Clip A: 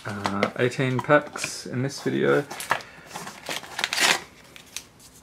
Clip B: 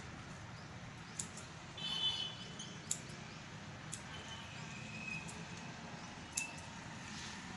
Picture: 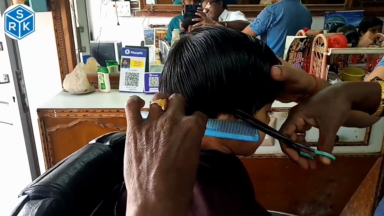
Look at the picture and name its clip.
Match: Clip B